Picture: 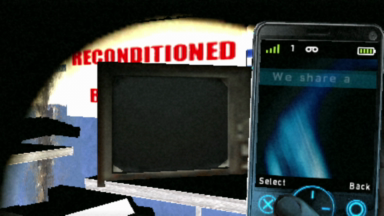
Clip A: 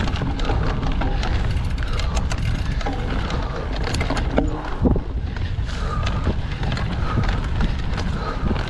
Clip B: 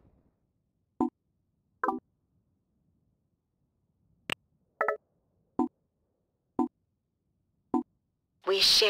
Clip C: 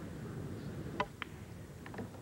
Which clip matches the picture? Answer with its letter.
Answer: B